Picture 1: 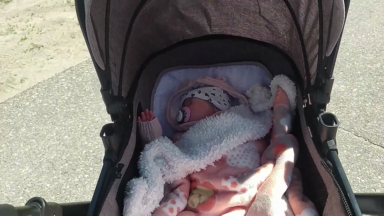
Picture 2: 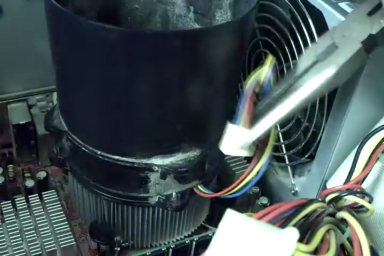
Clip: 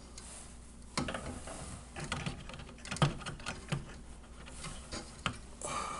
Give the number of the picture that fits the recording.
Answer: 2